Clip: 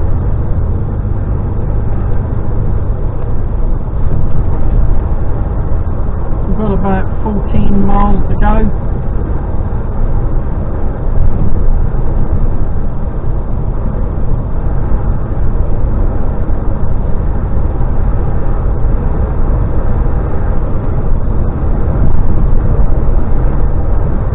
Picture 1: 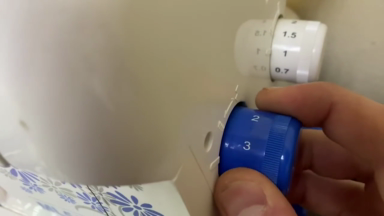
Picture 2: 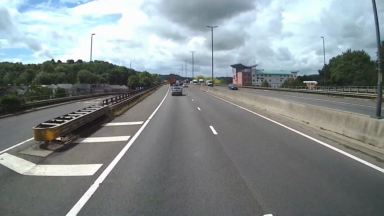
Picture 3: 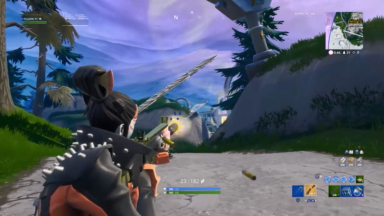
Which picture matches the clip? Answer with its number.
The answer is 2